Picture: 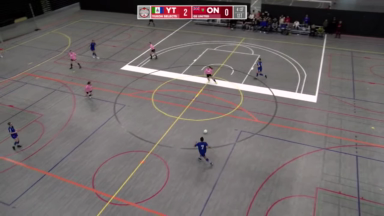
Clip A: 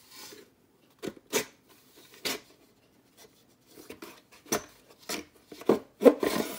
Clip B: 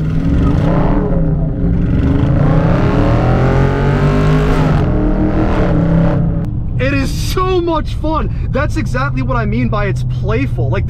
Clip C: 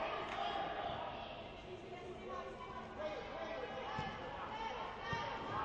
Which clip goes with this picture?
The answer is C